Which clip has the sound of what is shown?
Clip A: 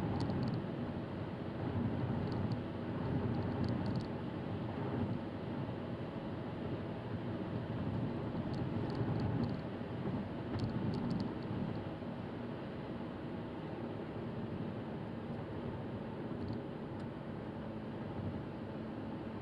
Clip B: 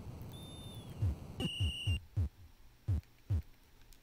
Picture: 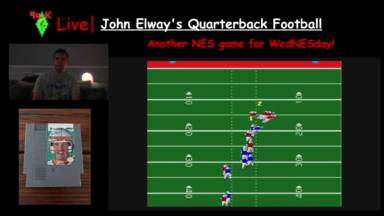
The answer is B